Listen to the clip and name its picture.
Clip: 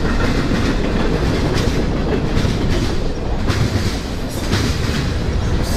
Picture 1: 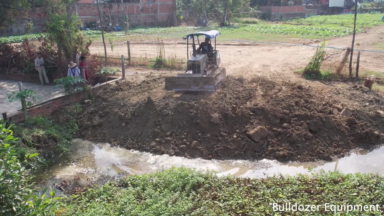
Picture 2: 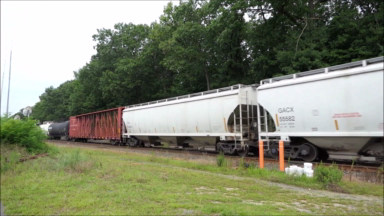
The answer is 2